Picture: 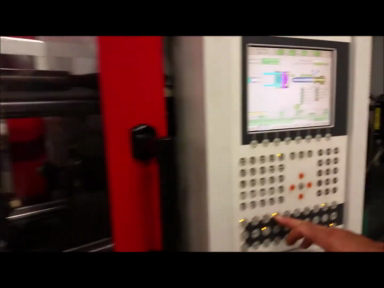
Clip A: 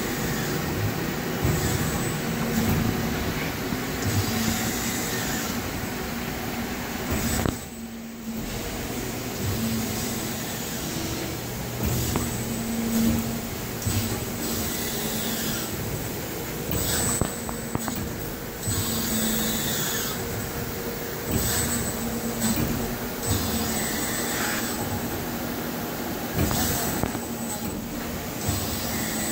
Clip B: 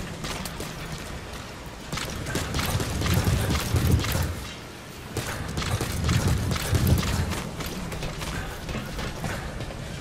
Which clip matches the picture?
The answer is A